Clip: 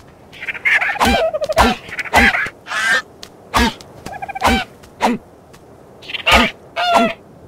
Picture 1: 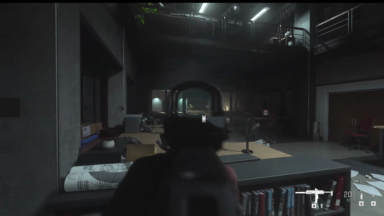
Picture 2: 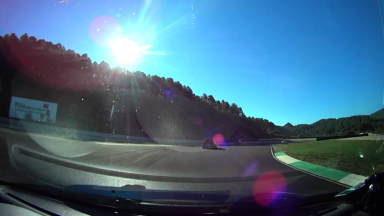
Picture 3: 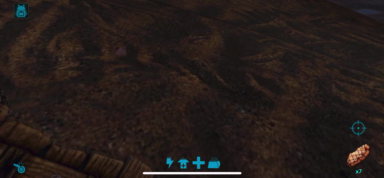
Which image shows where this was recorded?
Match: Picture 3